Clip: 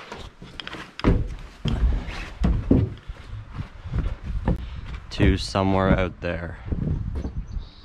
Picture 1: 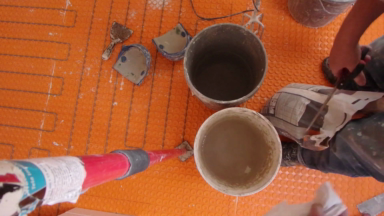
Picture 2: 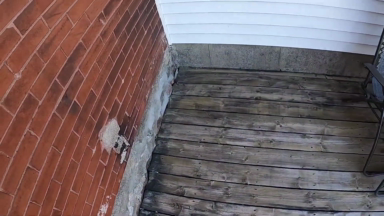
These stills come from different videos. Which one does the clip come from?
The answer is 2